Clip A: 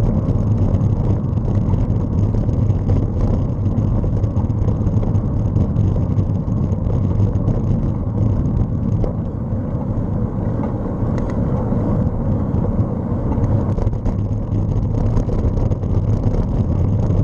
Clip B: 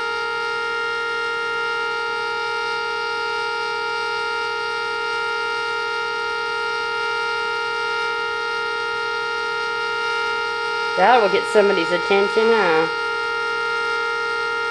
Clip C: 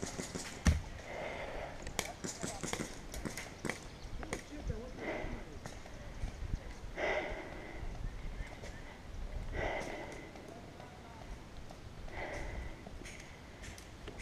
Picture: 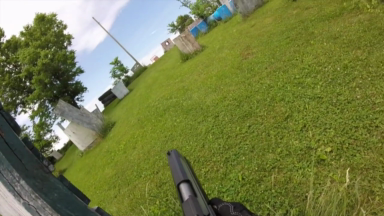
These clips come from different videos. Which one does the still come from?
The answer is C